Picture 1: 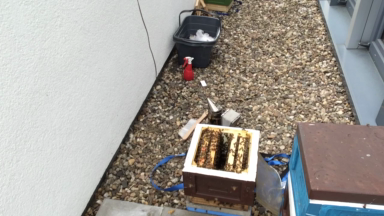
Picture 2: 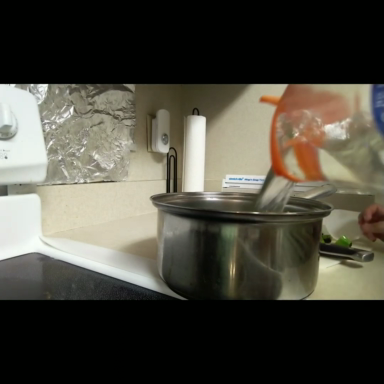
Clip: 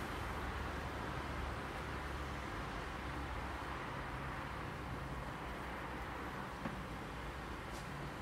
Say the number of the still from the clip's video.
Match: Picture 1